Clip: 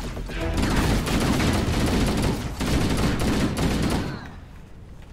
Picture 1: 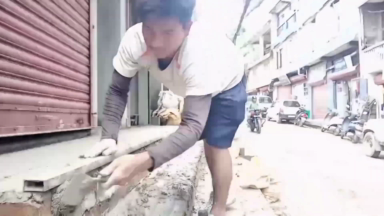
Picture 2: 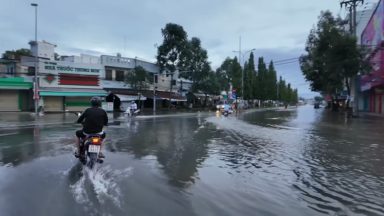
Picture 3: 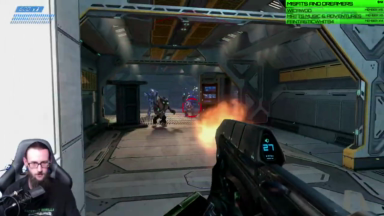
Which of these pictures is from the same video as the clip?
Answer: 3